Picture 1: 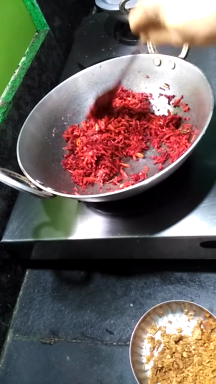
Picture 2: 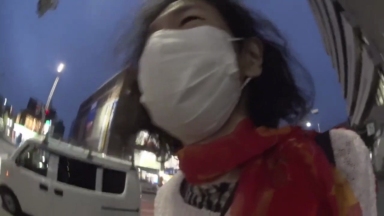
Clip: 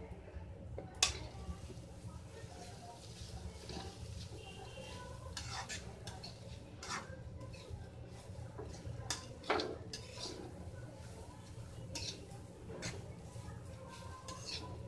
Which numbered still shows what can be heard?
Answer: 1